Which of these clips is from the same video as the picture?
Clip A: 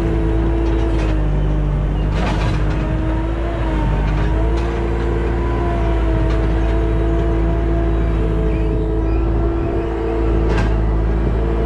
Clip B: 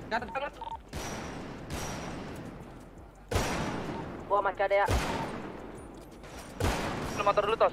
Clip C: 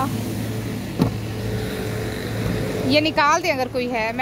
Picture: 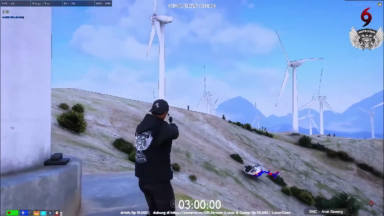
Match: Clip B